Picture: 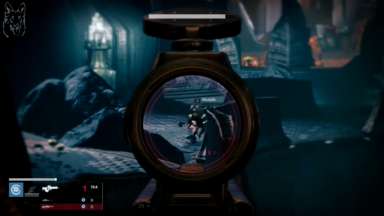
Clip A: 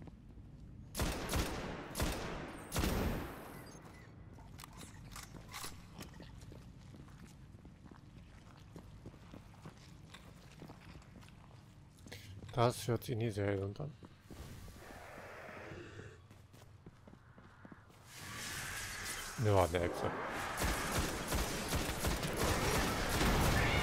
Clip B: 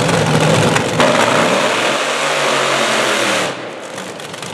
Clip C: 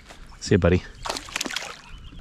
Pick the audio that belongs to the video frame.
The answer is A